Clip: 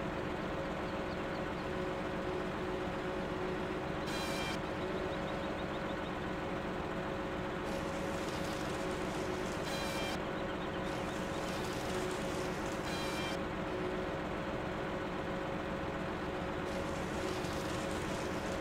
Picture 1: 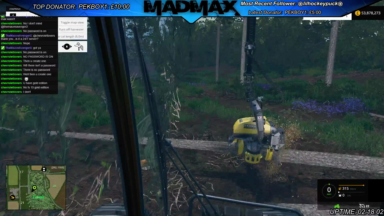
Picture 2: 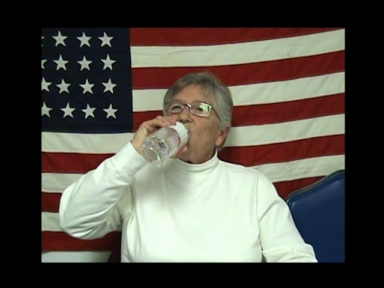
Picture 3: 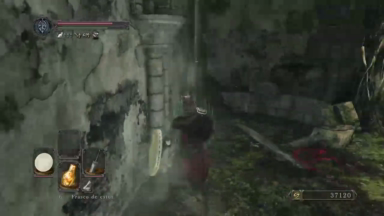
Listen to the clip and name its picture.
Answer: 1